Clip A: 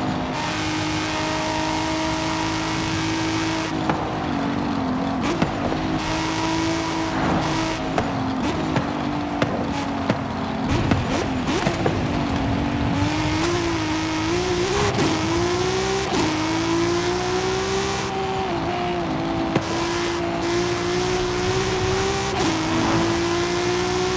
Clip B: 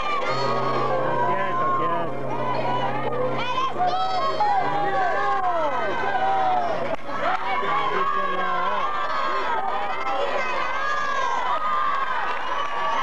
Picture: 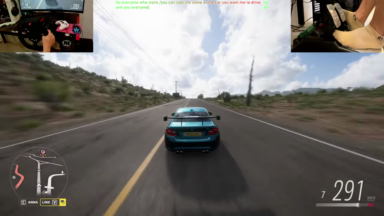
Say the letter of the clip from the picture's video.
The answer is A